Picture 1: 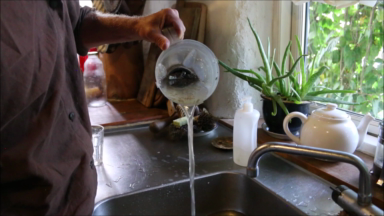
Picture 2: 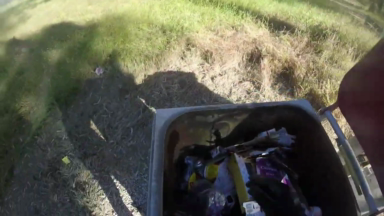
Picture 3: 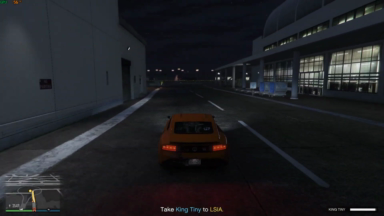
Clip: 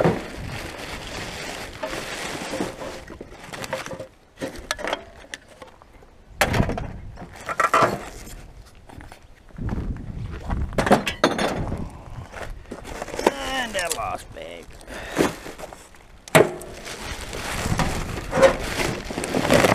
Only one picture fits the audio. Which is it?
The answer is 2